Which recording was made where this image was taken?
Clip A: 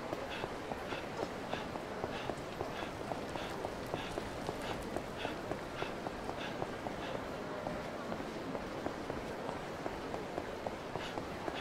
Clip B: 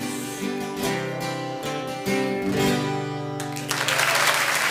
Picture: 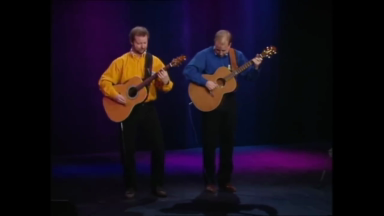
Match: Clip B